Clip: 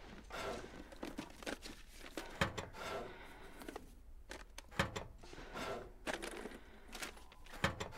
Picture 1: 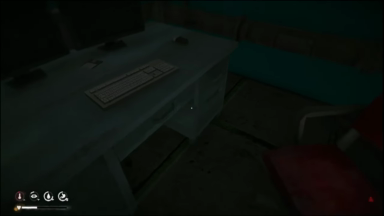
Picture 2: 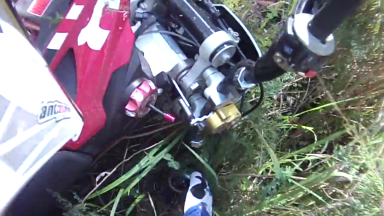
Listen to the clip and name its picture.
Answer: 1